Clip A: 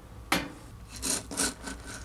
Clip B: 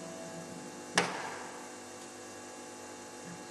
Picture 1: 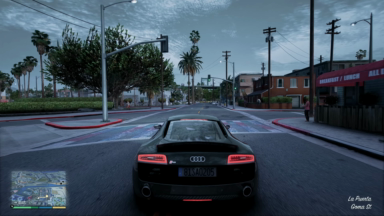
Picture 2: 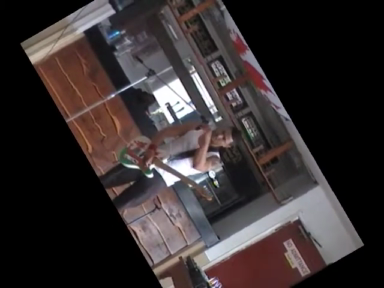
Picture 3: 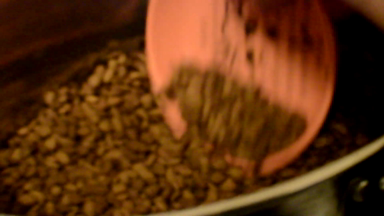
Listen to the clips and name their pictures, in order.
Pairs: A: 3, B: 2